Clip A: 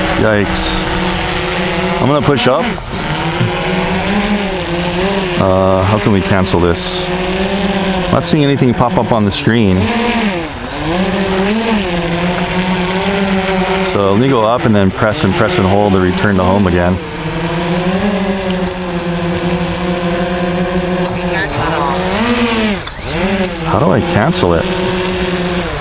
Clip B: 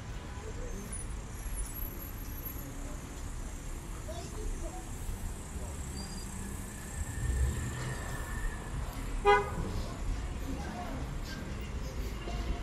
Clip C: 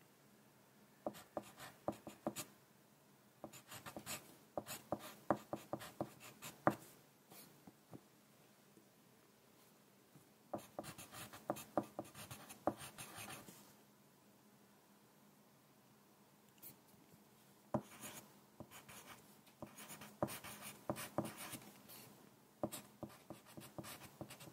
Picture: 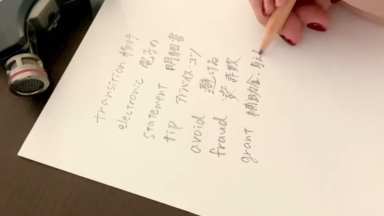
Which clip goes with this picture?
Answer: C